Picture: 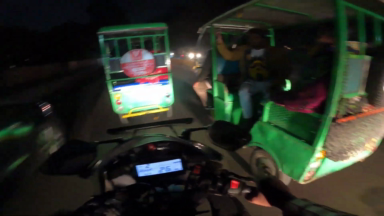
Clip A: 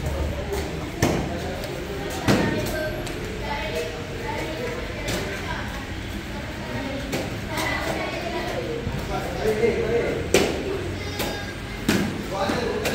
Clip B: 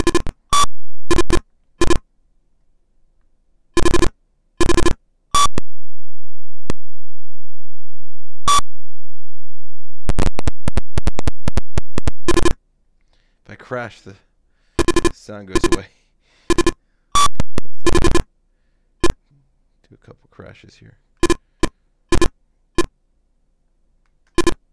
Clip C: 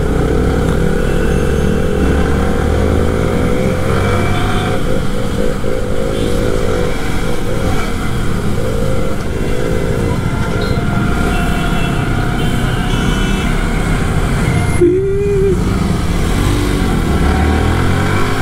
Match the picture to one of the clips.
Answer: C